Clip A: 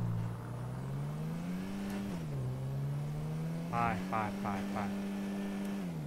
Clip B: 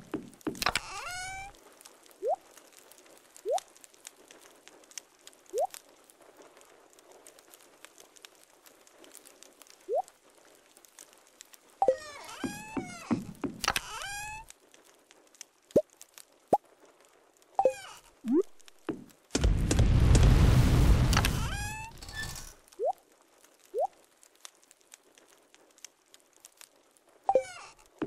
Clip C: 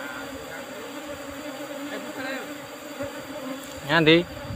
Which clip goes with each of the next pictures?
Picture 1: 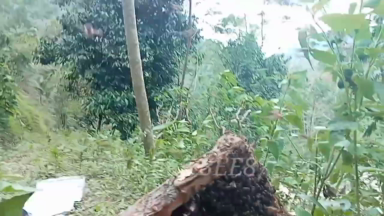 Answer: C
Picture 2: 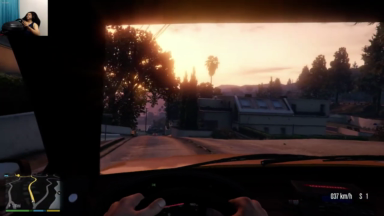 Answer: A